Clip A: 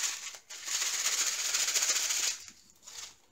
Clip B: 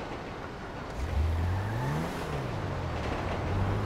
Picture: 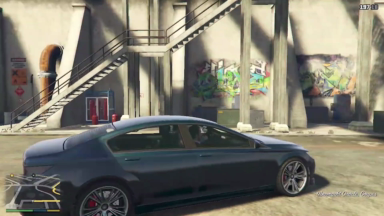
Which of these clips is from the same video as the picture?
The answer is B